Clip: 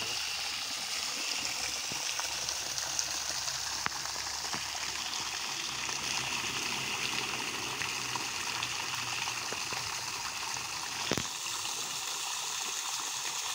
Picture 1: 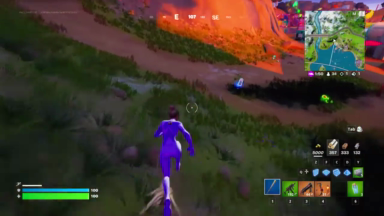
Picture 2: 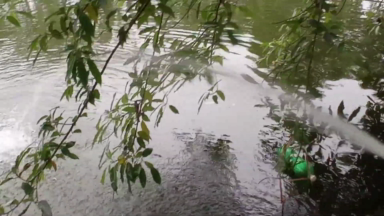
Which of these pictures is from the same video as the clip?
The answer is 2